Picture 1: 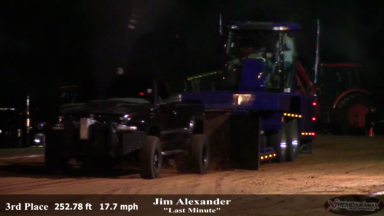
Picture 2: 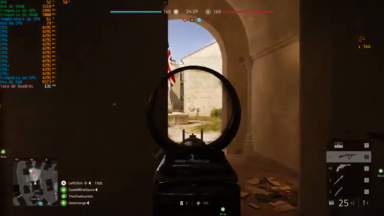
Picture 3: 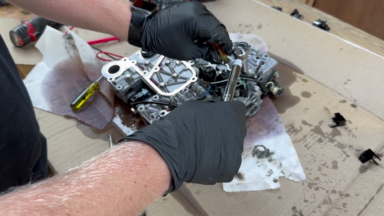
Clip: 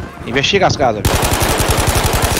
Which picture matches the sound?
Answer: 2